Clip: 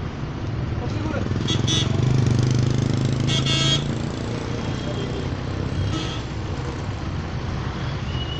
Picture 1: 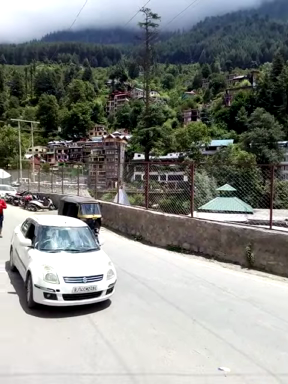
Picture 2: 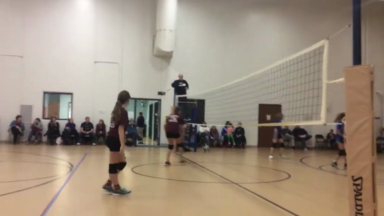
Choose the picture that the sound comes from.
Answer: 1